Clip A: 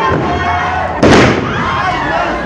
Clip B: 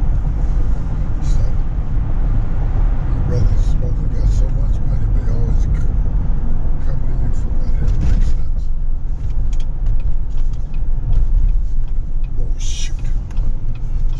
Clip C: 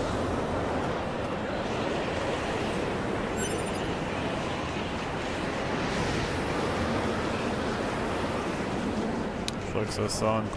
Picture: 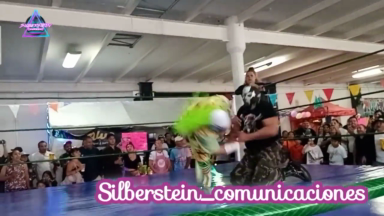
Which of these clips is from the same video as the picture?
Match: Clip A